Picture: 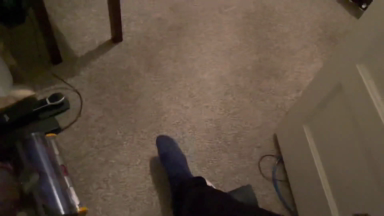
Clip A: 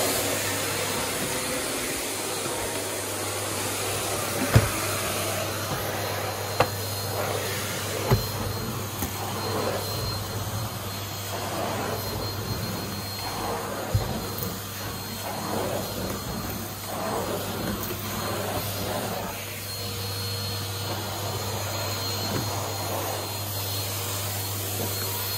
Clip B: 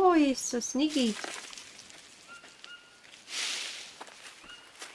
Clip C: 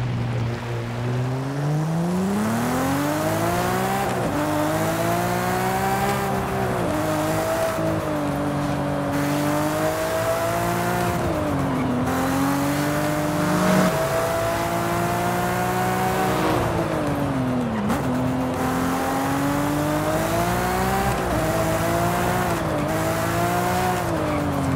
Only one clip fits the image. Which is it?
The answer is A